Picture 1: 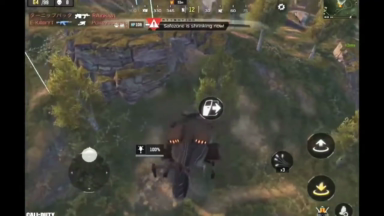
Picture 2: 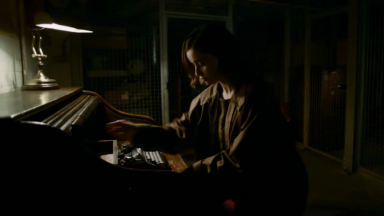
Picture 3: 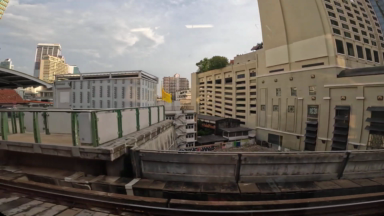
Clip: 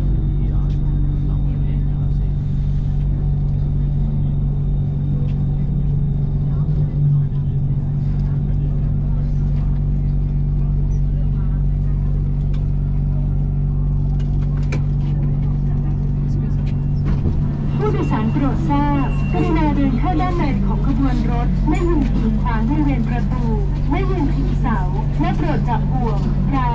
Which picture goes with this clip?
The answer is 3